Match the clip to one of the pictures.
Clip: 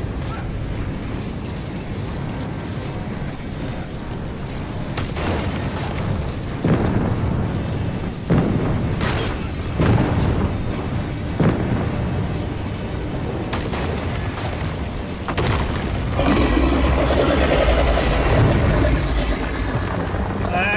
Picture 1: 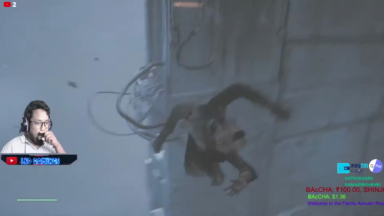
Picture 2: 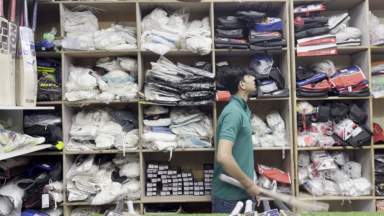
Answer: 1